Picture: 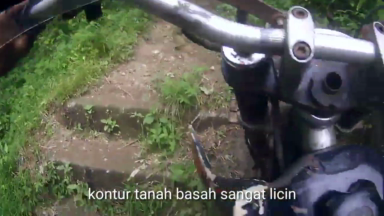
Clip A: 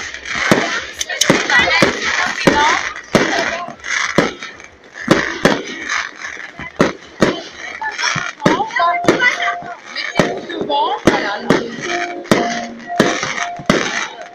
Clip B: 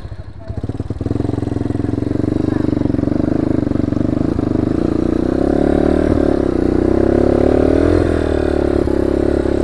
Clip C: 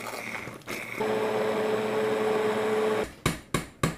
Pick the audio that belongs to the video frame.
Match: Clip B